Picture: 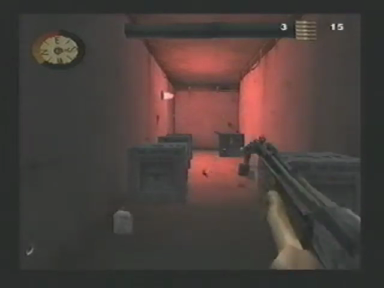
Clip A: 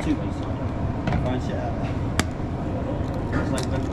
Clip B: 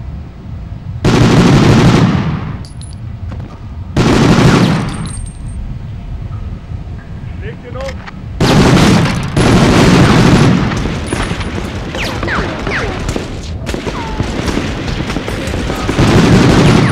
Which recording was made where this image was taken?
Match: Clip B